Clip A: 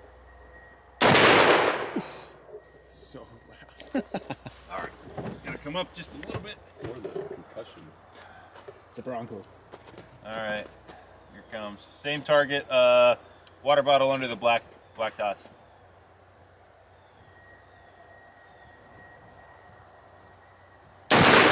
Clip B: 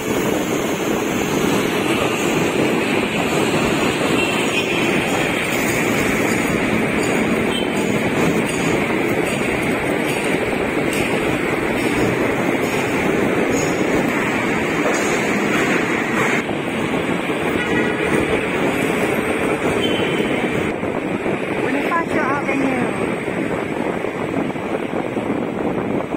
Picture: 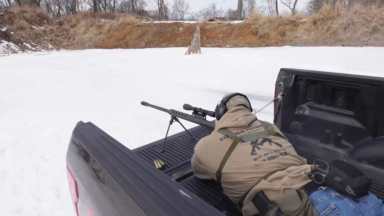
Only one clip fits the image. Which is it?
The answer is A